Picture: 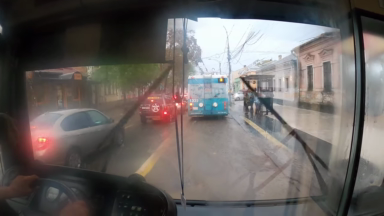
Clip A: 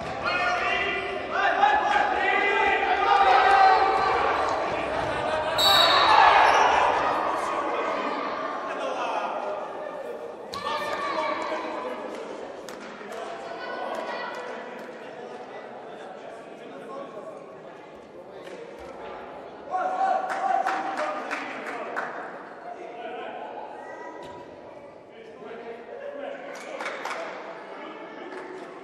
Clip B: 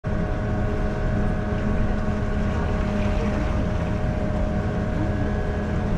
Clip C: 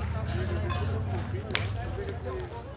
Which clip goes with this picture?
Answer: B